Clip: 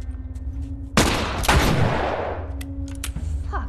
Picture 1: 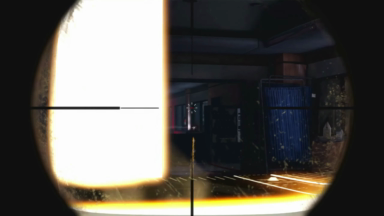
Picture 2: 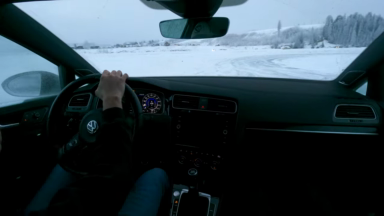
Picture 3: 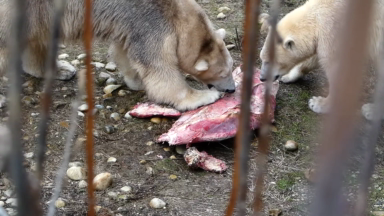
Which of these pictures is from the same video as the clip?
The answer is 1